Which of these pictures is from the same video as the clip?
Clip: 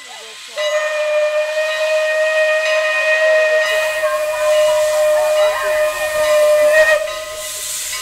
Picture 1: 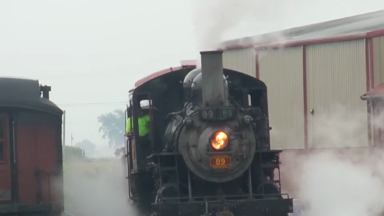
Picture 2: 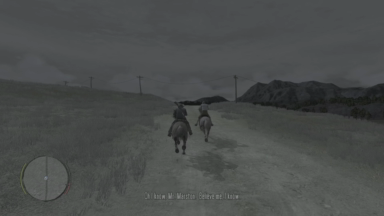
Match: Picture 1